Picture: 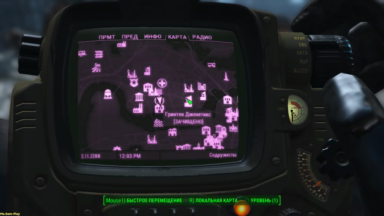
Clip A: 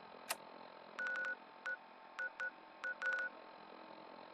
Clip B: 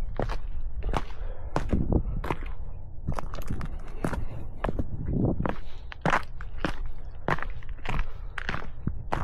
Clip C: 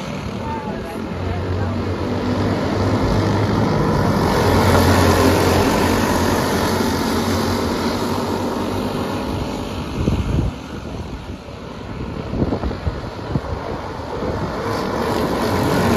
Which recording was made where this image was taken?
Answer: A